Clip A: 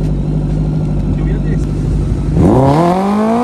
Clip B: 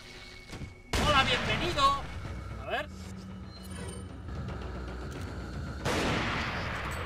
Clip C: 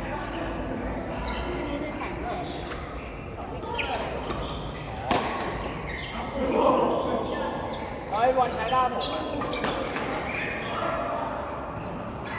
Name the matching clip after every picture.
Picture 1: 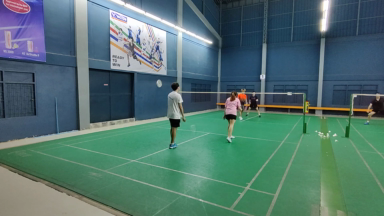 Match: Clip C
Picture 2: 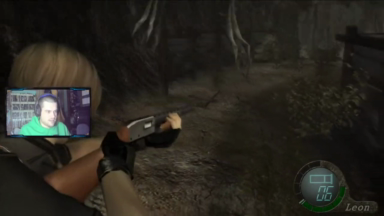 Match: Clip B